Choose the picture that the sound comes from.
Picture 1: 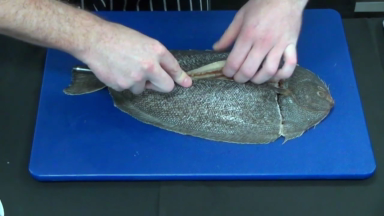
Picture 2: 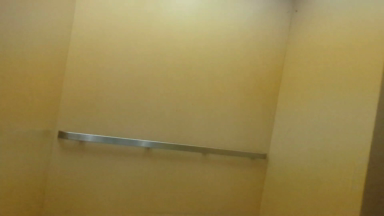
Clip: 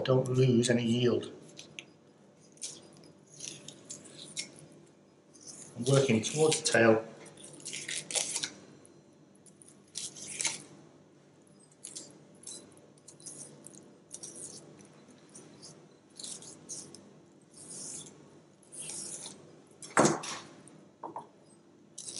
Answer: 1